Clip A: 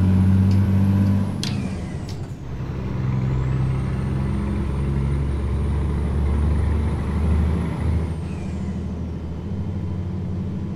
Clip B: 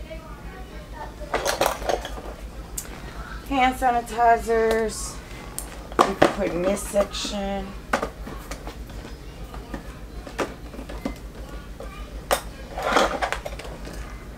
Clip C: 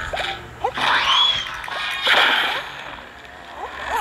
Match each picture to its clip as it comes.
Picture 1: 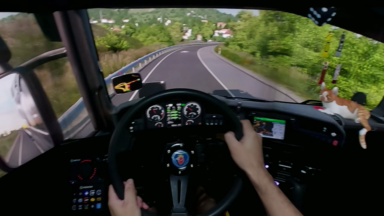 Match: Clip A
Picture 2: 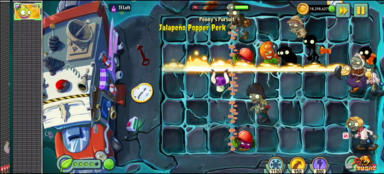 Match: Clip C